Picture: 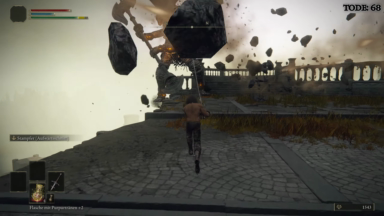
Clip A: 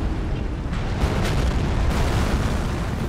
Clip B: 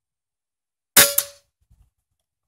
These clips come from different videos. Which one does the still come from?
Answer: A